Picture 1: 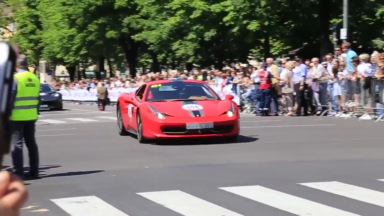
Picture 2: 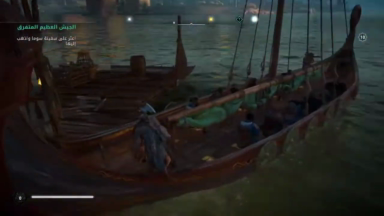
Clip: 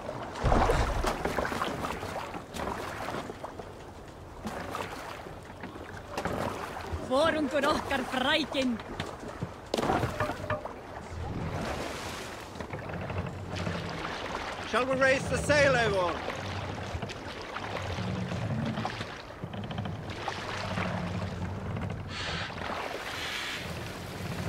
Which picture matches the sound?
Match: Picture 2